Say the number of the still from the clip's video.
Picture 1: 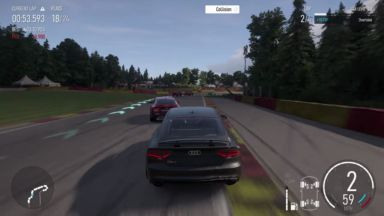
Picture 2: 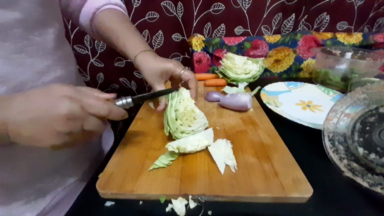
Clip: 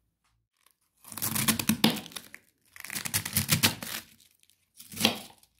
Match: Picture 2